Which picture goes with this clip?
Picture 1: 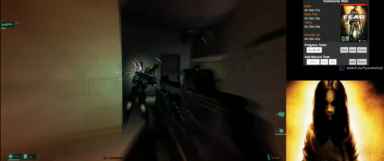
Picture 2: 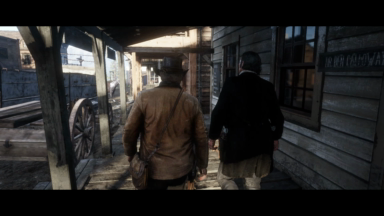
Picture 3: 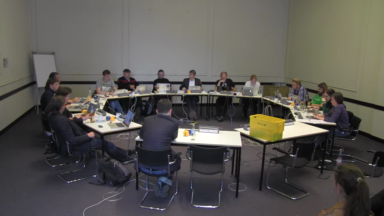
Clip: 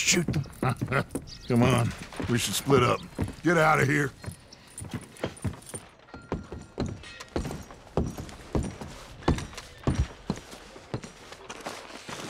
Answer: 2